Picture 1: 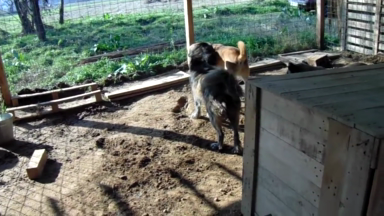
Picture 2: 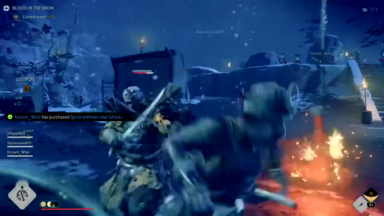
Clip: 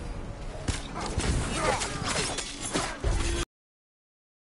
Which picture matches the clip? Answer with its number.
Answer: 2